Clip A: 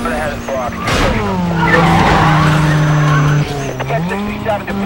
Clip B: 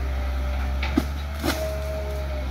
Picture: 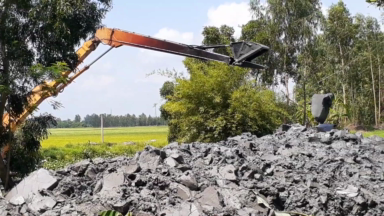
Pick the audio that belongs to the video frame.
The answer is B